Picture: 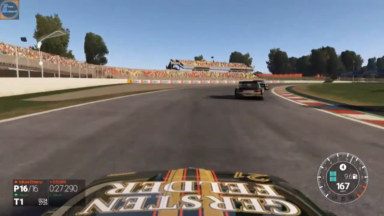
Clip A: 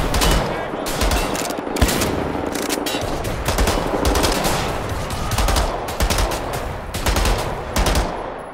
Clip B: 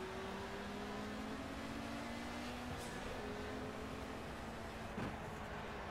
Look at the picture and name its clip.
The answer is B